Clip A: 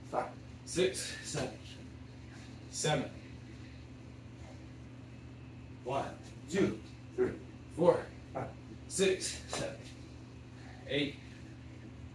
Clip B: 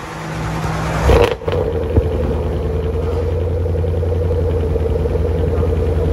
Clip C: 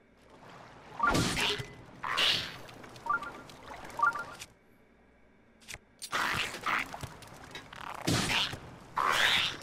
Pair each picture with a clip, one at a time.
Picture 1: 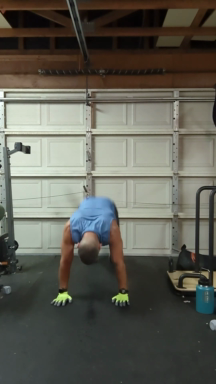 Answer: A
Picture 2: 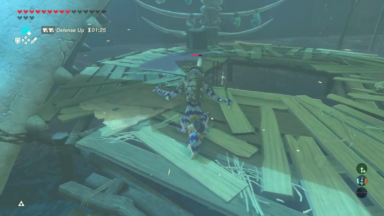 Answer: C